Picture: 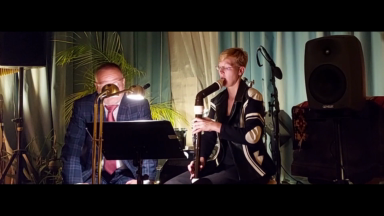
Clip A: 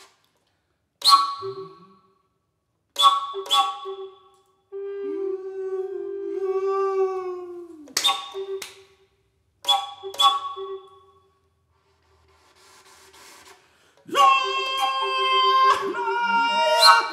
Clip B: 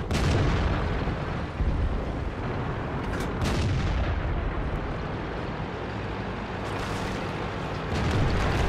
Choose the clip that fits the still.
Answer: A